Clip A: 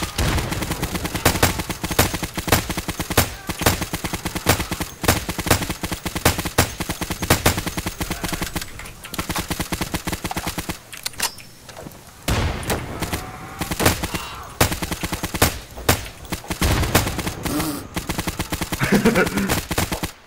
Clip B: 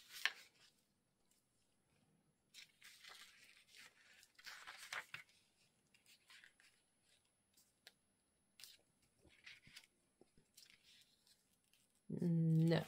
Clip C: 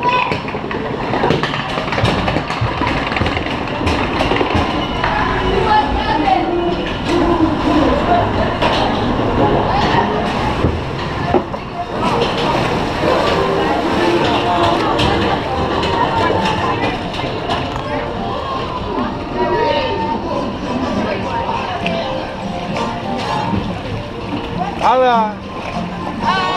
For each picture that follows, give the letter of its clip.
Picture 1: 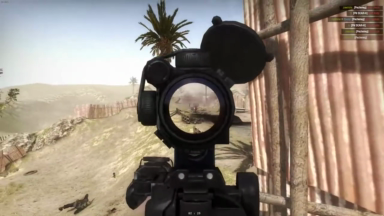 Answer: A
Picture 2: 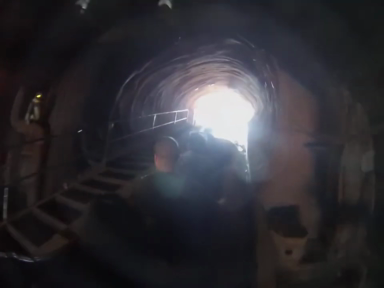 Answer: C